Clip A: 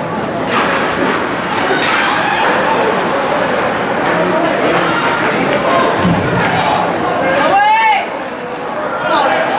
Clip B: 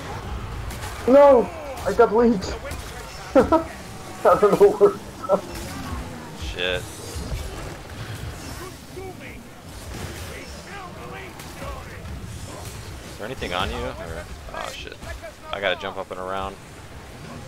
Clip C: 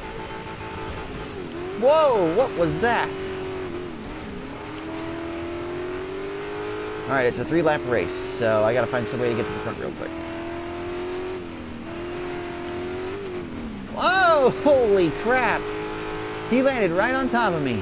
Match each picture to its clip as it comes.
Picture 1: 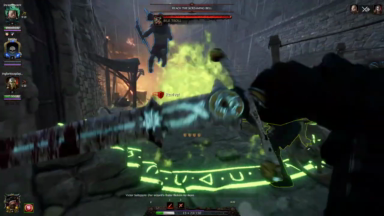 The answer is B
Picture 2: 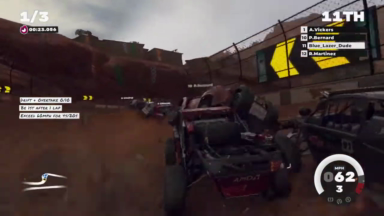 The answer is C